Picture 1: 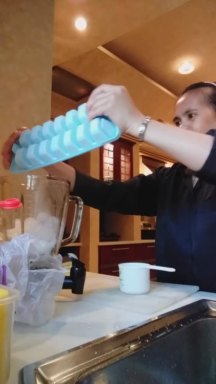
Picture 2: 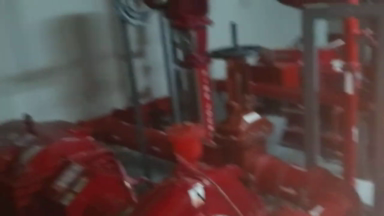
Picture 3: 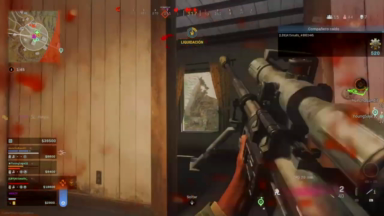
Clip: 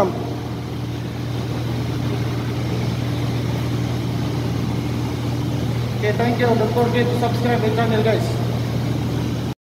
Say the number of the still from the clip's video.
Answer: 2